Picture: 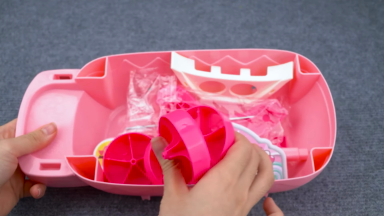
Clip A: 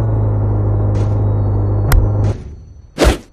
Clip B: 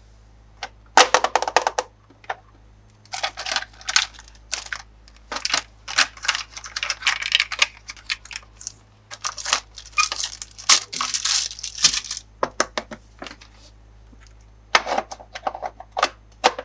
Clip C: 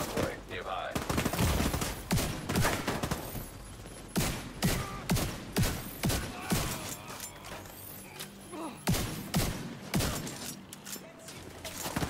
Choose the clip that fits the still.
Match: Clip B